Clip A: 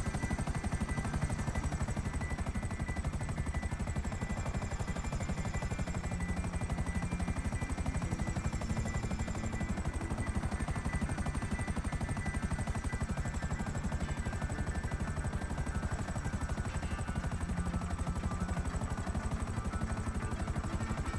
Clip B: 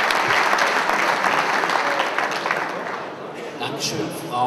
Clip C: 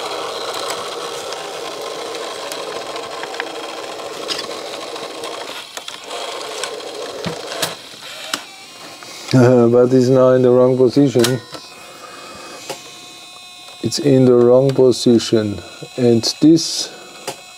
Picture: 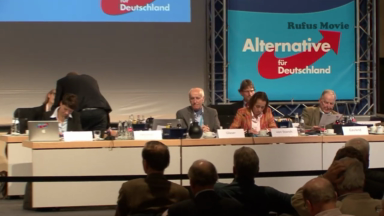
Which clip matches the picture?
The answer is B